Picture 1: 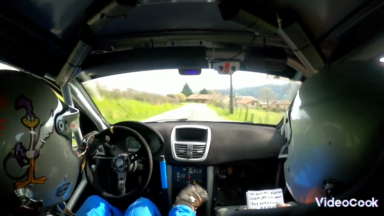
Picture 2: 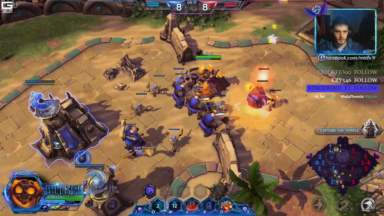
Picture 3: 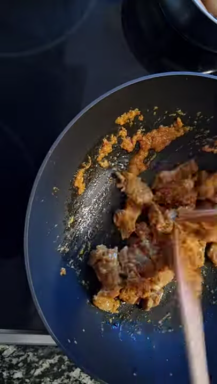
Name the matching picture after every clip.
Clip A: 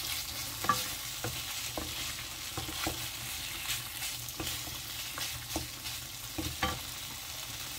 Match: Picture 3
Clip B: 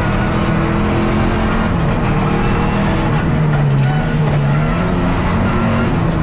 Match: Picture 1